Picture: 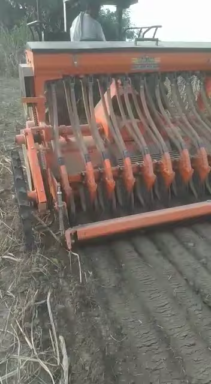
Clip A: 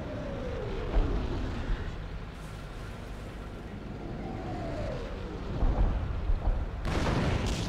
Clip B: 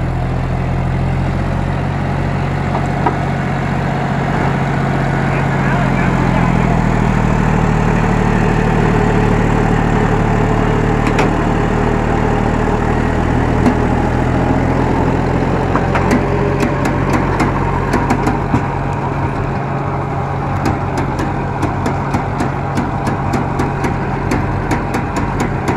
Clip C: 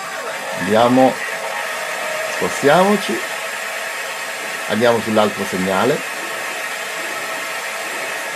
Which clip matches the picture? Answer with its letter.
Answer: B